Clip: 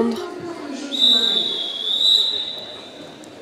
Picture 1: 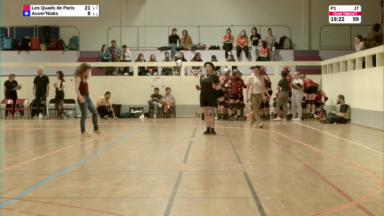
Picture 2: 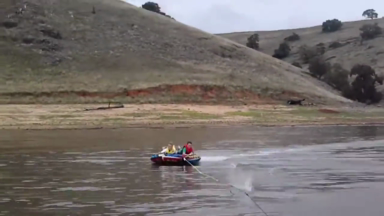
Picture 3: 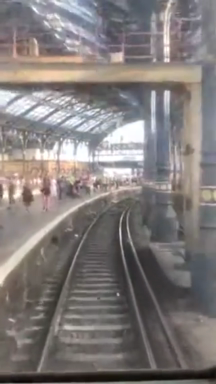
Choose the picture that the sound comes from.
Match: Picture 1